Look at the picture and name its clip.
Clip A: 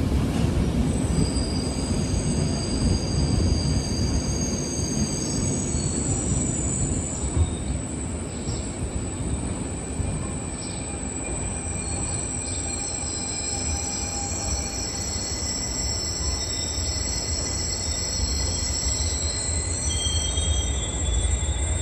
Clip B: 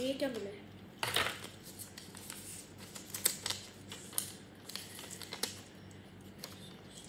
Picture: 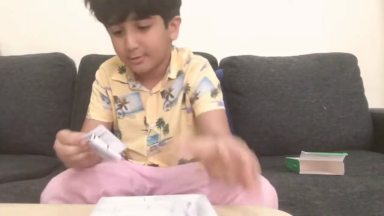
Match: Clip B